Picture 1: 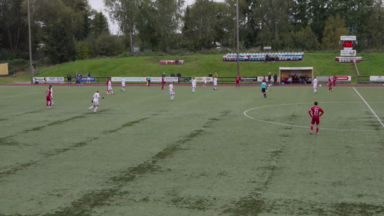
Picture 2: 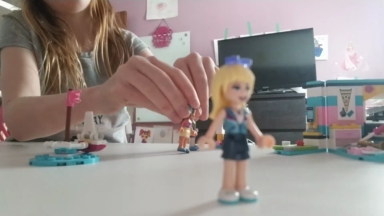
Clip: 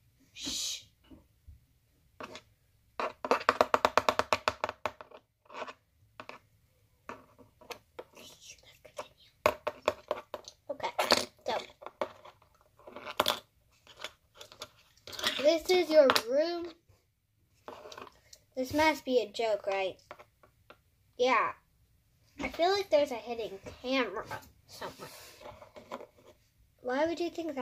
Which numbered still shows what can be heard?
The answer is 2